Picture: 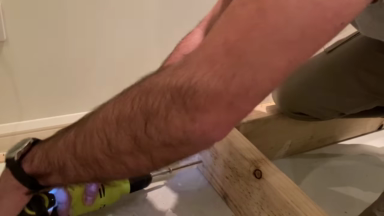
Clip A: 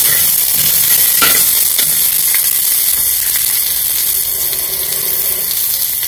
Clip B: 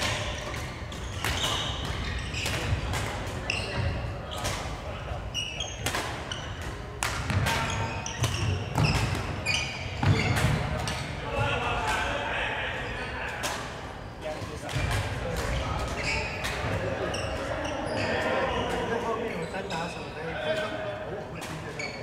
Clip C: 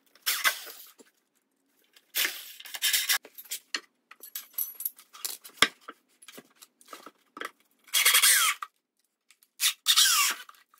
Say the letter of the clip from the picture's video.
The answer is C